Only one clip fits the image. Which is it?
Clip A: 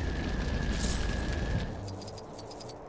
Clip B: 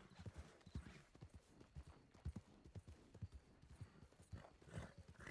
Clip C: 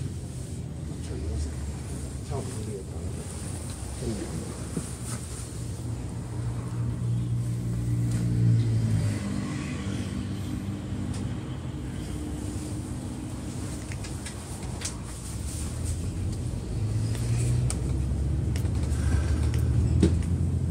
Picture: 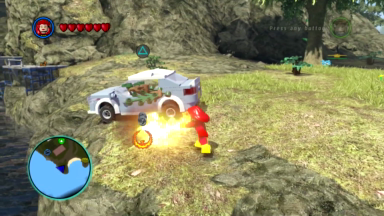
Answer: A